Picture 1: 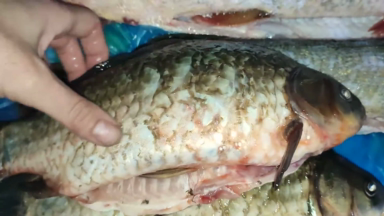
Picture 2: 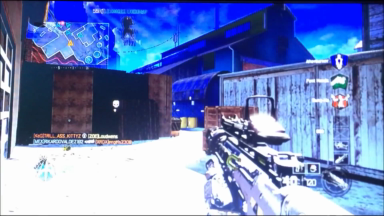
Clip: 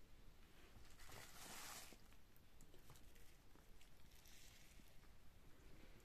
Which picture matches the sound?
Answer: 1